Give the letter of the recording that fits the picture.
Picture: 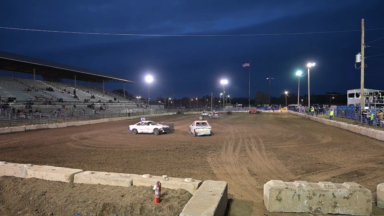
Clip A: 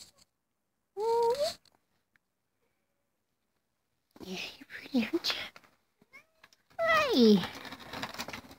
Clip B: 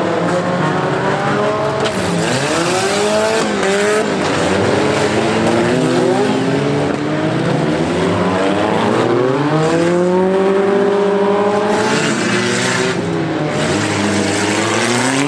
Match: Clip B